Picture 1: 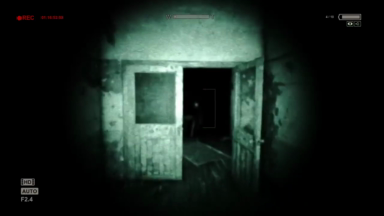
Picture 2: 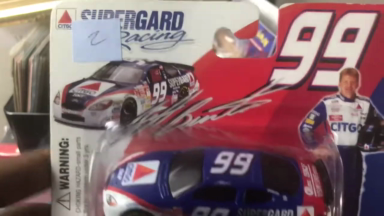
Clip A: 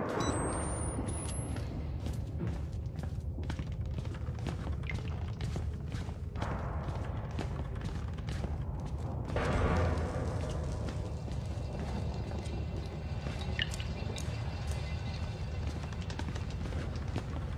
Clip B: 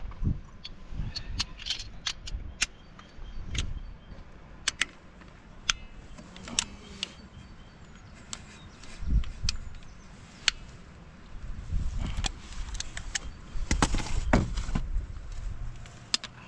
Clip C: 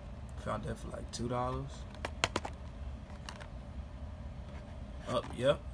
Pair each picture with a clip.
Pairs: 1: A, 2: C